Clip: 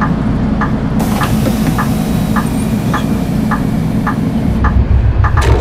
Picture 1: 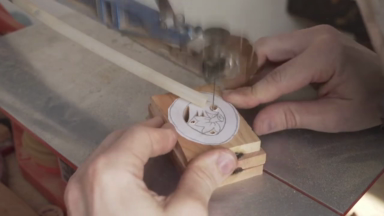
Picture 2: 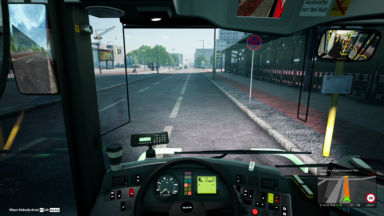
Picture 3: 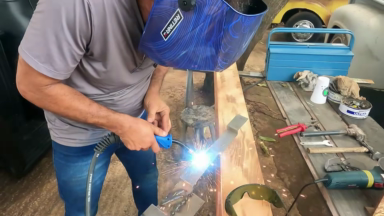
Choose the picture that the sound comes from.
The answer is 2